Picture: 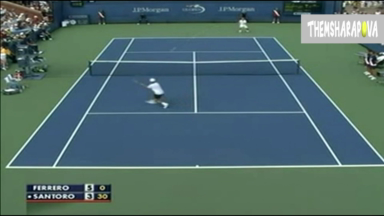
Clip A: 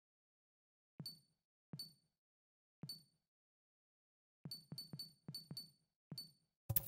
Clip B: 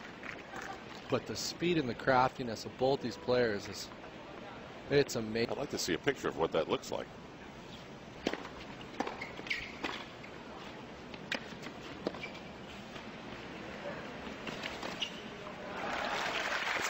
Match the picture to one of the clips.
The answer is B